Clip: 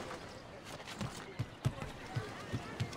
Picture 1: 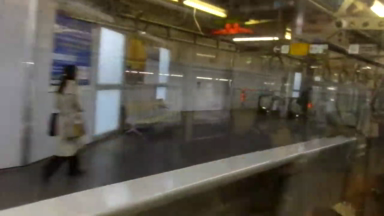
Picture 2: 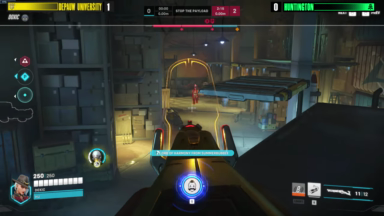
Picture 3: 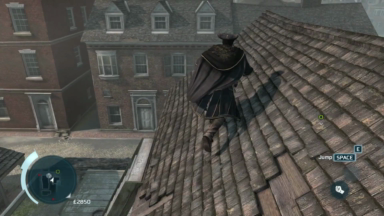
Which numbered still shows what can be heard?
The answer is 3